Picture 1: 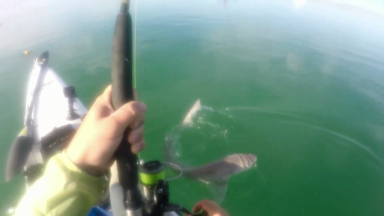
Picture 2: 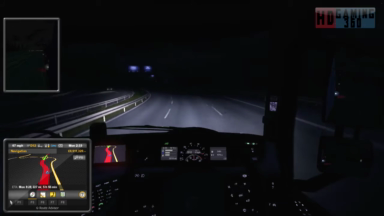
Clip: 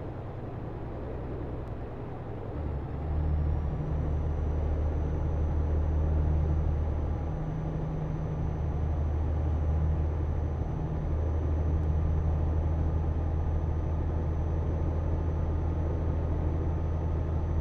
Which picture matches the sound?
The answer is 2